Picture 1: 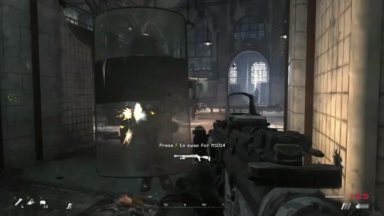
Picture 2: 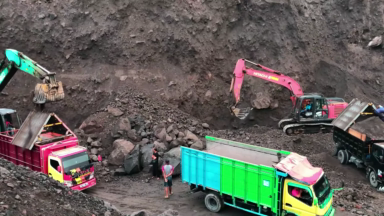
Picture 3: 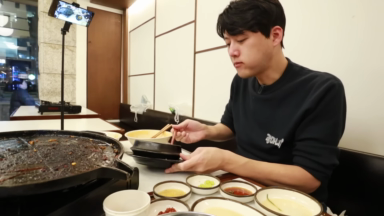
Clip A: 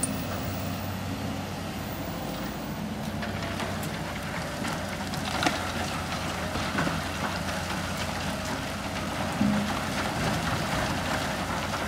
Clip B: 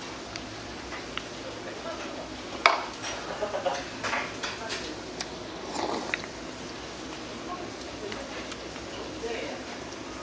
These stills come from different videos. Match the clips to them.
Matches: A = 2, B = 3